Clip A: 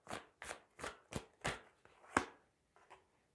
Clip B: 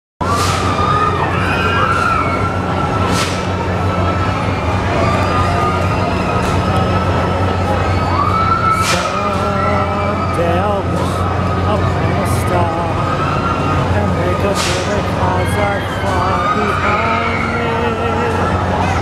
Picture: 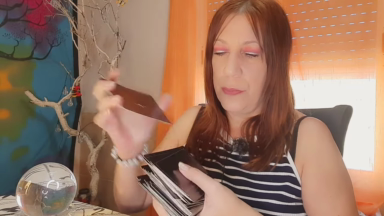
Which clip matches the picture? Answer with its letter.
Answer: A